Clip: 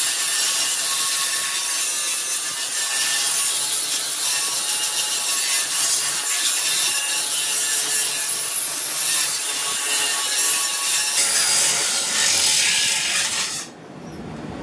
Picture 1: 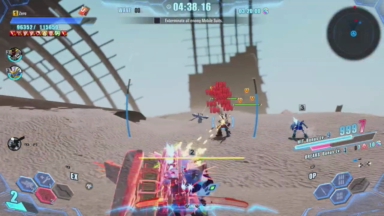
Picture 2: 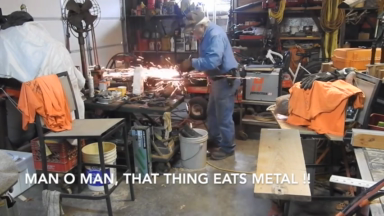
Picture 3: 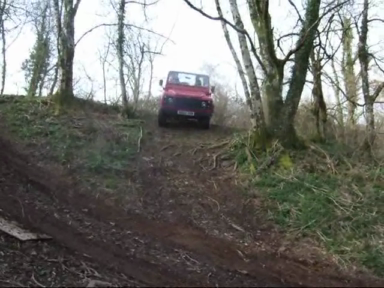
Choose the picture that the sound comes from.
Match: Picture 2